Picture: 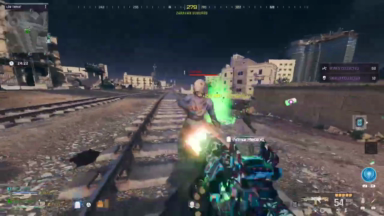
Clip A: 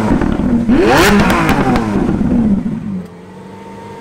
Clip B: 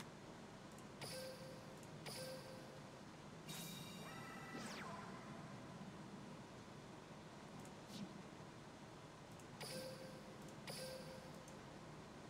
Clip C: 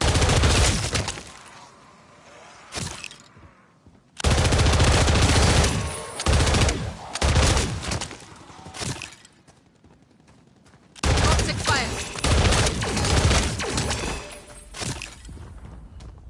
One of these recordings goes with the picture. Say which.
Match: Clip C